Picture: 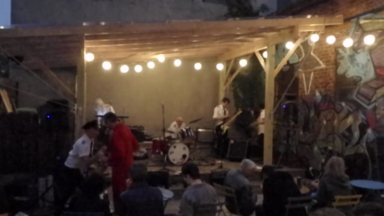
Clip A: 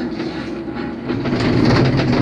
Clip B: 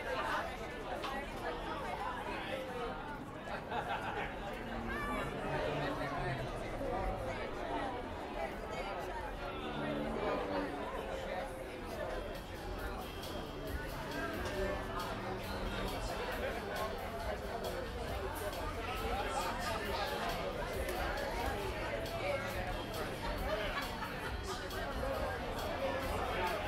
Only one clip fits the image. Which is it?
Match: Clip B